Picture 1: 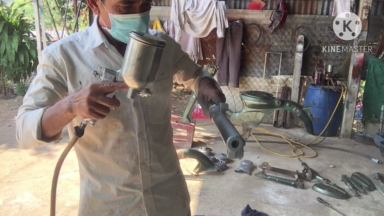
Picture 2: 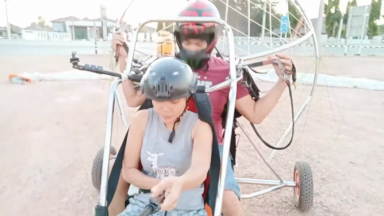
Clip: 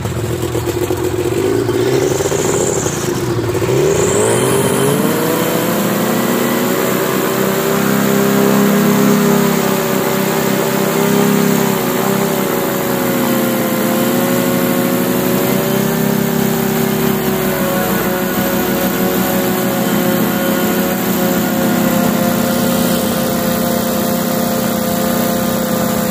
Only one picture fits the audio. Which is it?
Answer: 2